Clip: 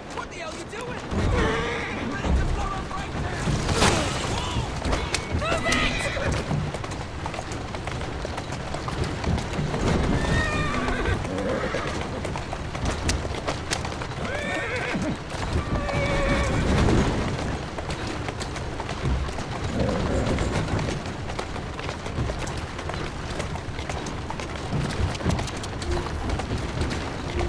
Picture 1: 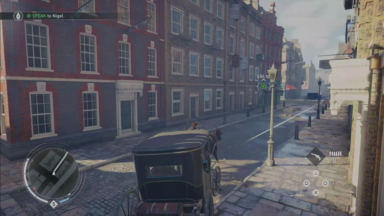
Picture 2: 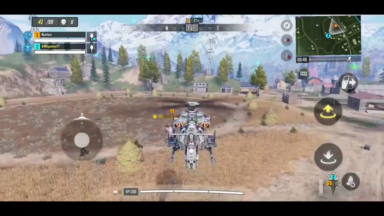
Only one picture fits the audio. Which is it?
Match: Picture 1